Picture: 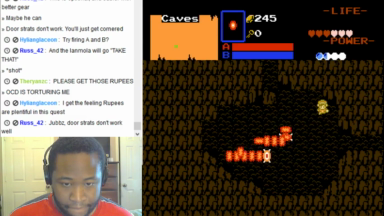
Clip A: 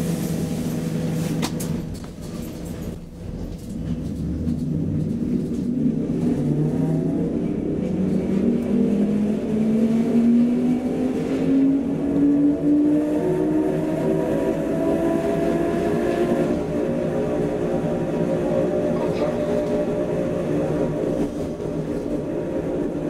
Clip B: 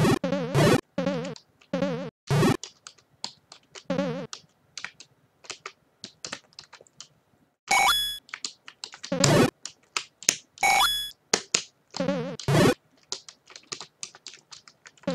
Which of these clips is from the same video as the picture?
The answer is B